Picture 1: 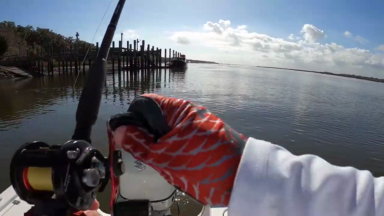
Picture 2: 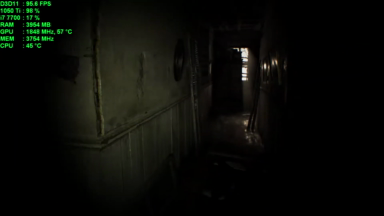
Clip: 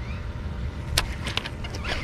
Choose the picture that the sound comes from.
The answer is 1